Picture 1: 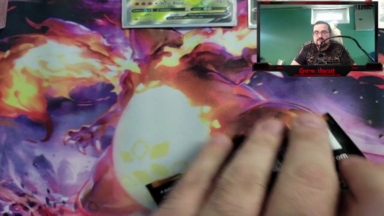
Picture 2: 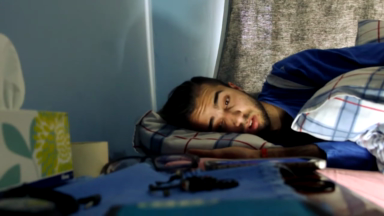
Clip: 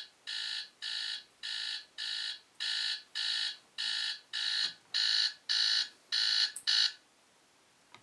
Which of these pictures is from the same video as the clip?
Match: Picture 2